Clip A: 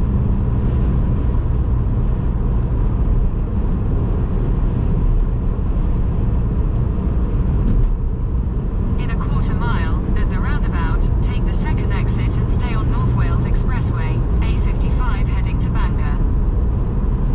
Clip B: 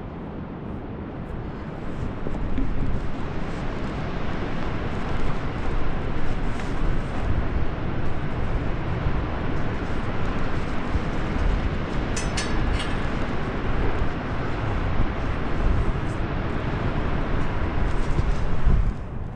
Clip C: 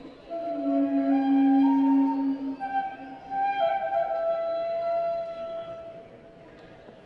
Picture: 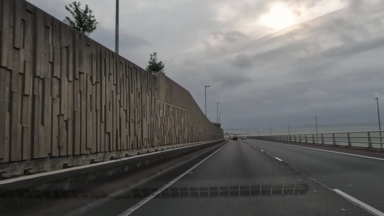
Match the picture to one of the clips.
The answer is A